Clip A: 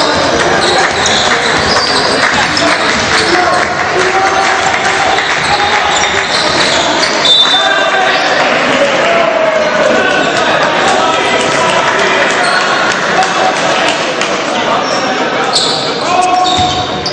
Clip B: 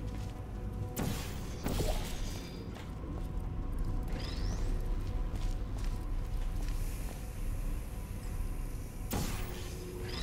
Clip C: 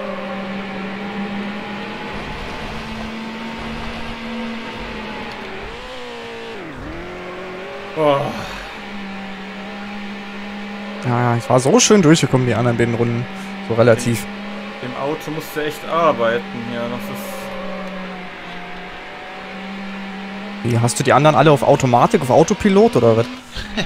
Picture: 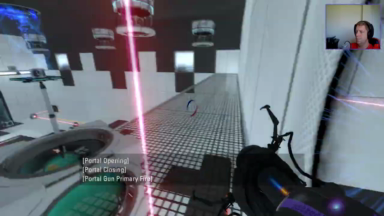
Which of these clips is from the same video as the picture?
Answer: B